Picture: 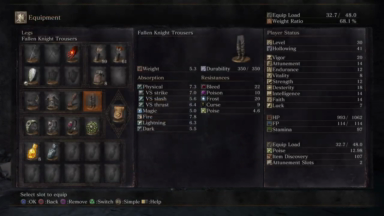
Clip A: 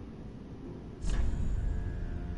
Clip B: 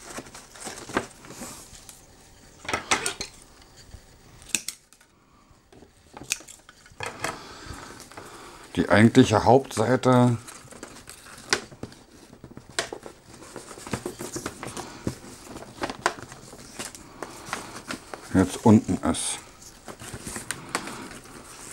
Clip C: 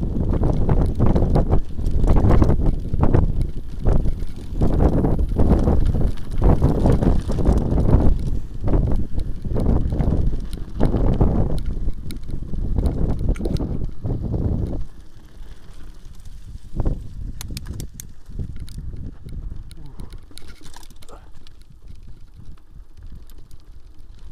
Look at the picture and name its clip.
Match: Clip A